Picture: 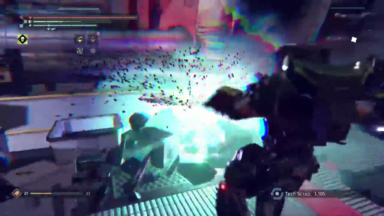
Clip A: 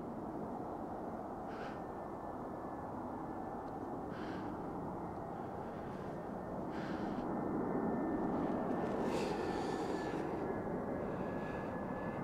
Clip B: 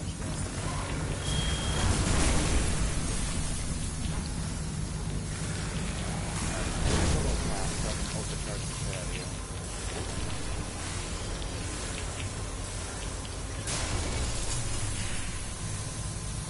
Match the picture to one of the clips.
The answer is B